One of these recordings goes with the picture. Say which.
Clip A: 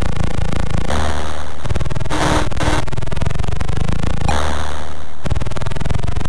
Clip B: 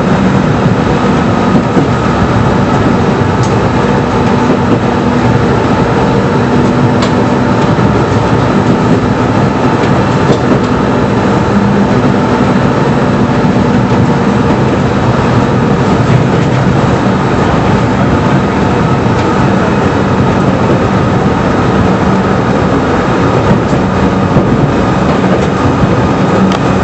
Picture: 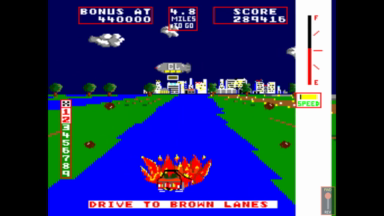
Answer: A